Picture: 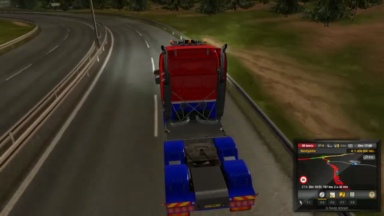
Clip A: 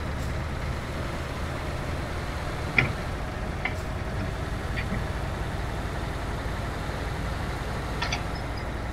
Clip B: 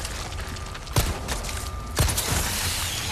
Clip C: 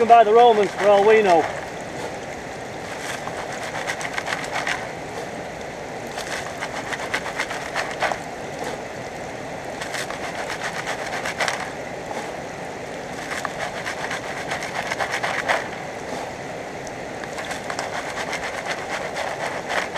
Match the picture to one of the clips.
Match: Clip A